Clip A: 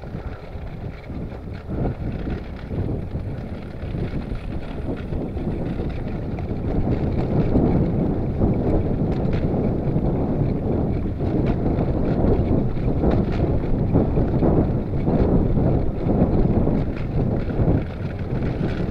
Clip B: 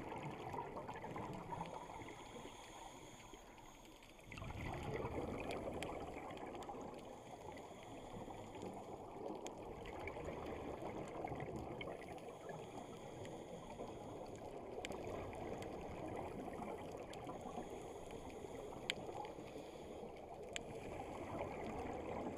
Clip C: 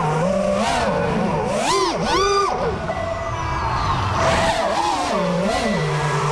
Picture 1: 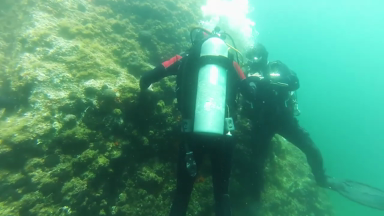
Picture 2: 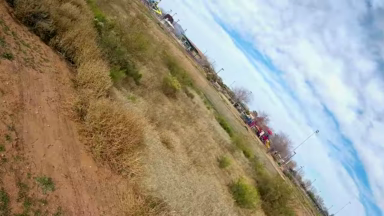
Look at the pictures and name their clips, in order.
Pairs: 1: B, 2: C